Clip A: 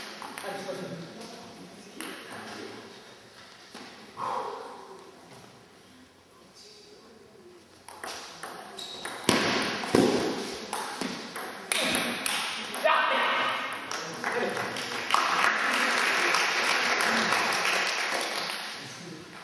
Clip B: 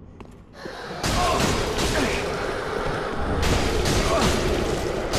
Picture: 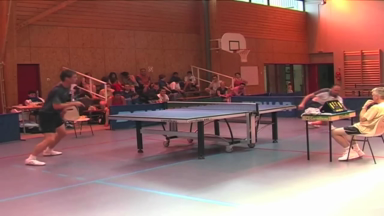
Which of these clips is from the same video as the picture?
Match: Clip A